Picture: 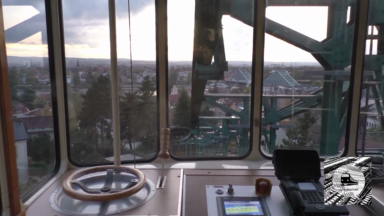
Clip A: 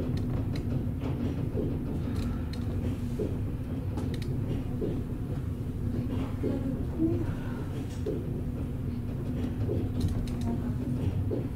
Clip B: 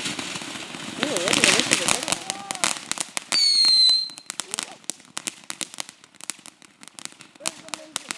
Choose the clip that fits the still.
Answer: A